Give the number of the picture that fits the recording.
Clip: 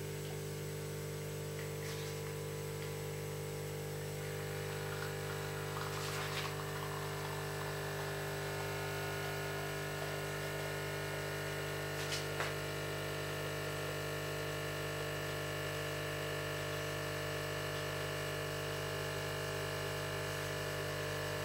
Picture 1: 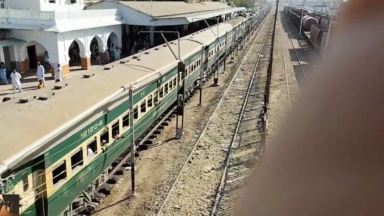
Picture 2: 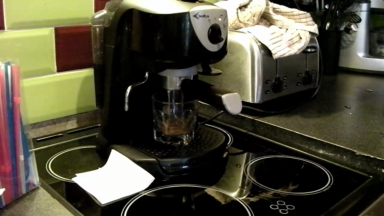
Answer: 2